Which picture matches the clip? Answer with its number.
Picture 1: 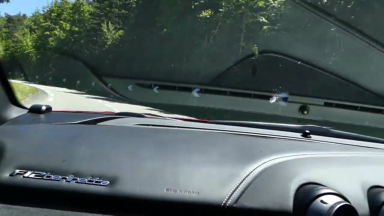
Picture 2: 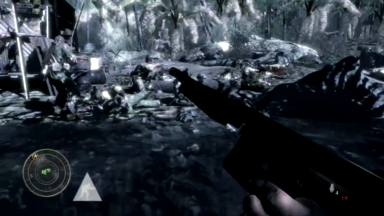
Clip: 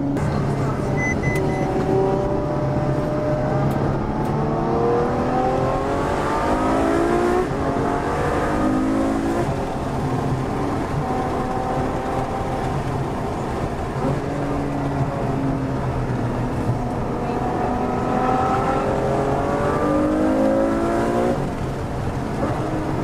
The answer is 1